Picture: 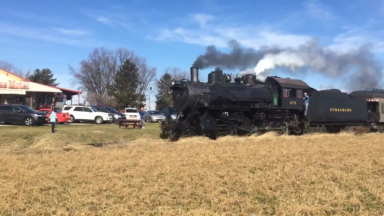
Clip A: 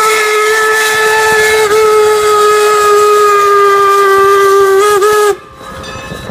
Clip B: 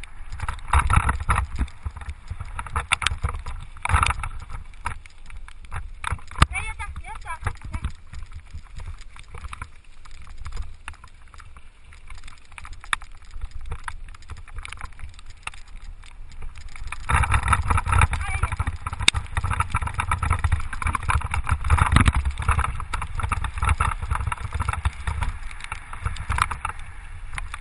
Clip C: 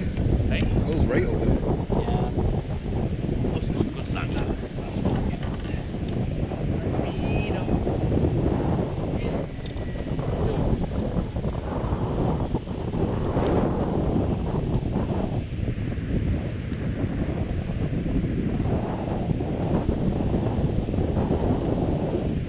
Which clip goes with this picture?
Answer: A